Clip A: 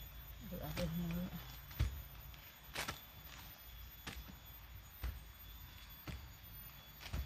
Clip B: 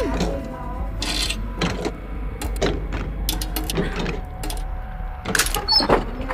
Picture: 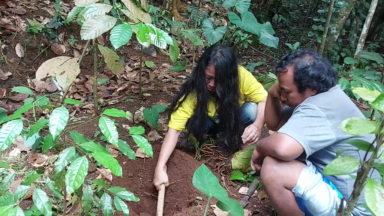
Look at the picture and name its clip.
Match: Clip A